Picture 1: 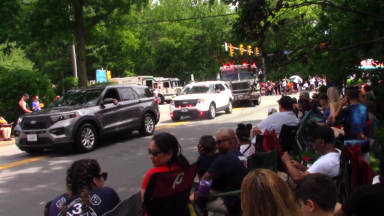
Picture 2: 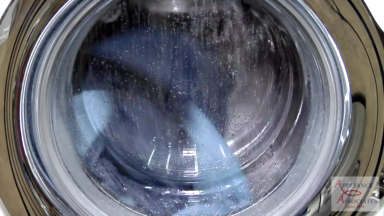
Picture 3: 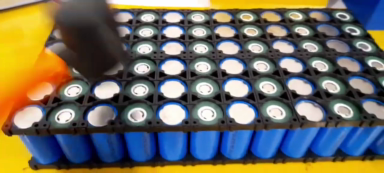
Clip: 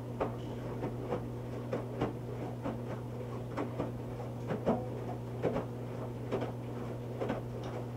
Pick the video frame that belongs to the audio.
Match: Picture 2